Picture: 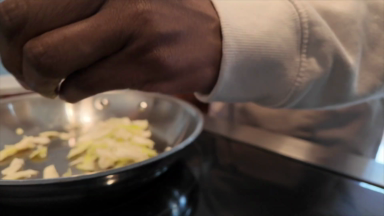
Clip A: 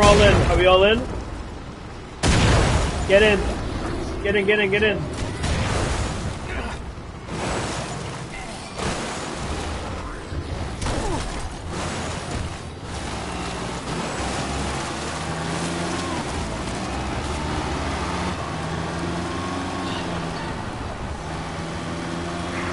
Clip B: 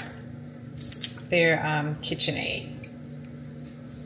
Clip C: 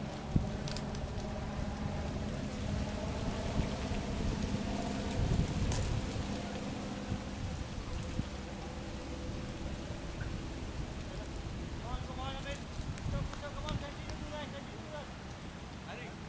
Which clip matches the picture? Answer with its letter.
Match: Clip B